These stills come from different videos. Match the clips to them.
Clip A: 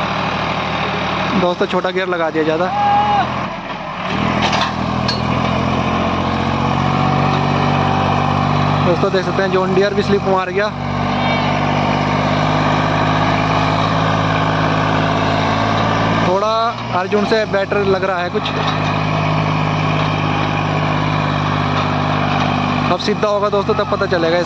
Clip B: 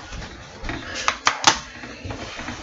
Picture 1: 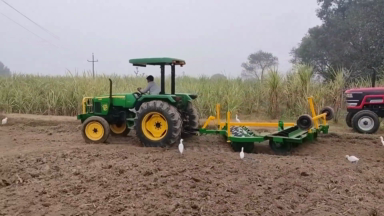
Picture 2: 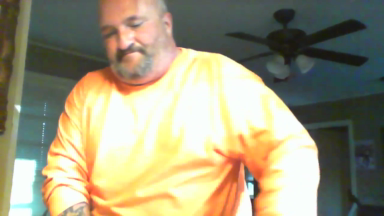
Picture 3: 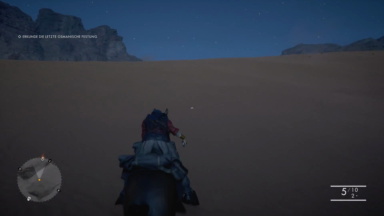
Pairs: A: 1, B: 2